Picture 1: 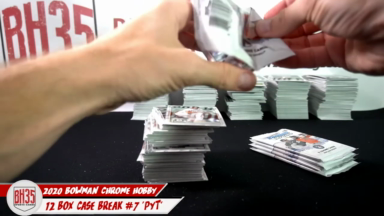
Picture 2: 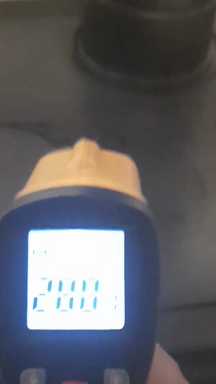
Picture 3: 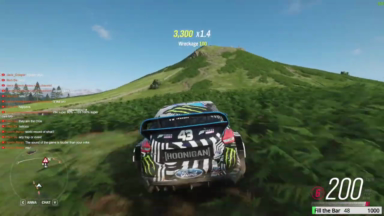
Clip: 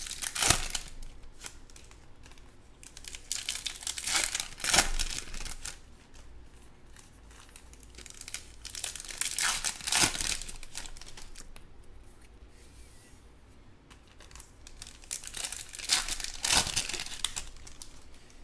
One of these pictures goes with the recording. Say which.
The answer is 1